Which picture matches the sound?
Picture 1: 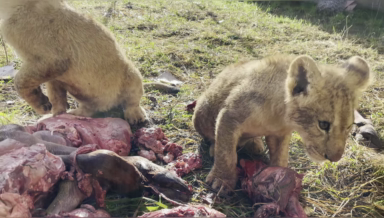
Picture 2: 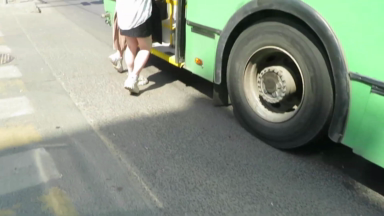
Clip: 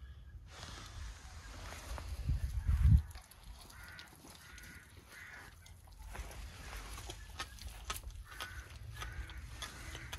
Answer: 1